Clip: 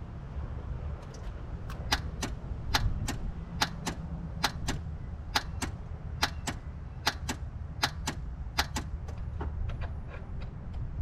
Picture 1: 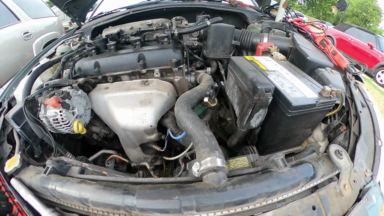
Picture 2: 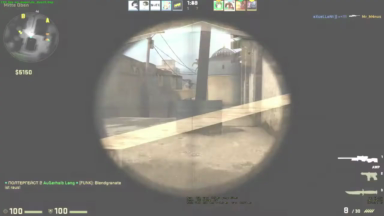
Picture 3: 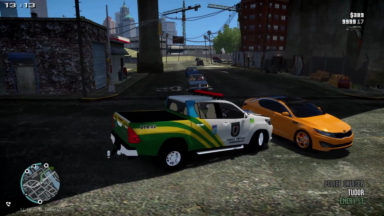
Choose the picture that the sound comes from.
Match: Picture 1